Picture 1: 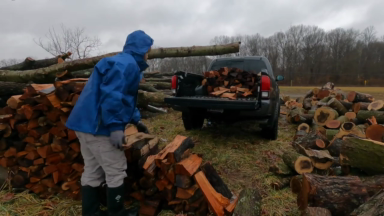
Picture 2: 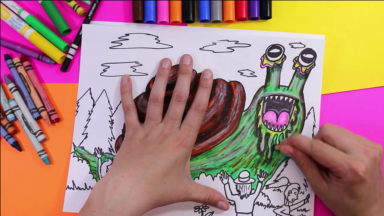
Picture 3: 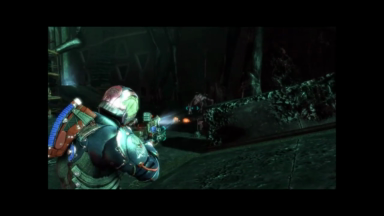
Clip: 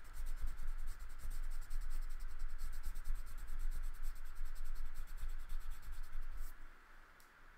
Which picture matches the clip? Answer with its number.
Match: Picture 2